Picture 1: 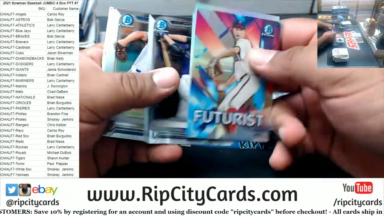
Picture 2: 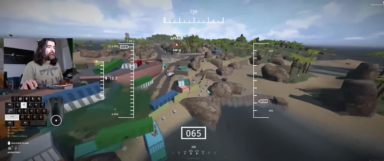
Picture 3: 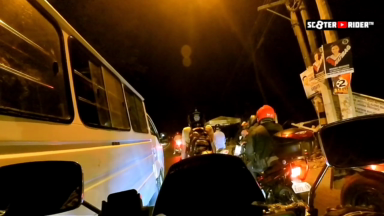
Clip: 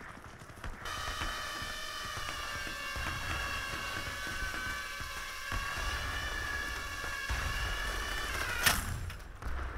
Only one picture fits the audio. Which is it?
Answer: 2